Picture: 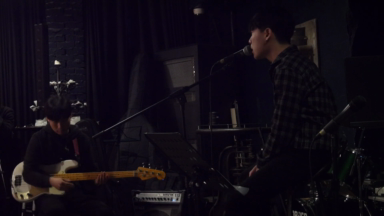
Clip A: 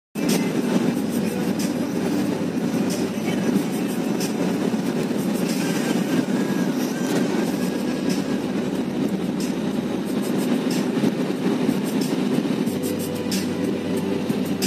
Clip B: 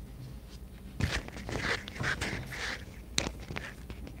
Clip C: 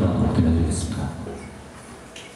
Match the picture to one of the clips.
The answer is C